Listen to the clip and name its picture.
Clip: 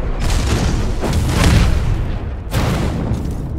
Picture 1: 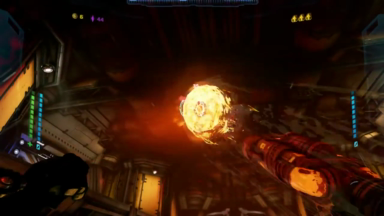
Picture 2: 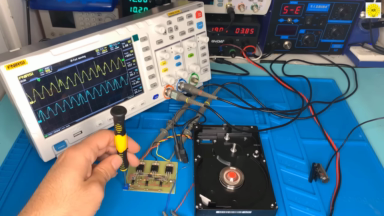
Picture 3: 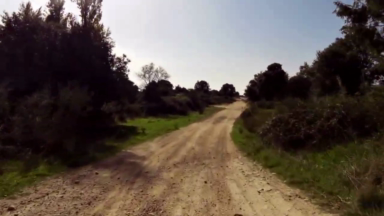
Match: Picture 1